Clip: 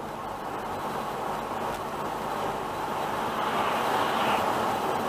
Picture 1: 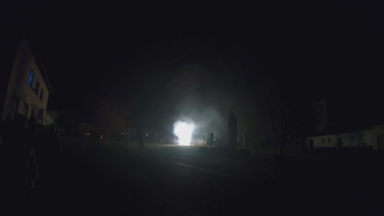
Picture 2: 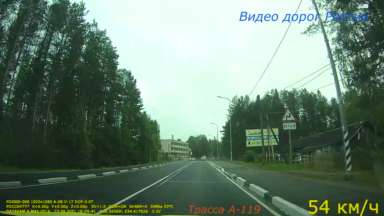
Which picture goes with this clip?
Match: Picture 2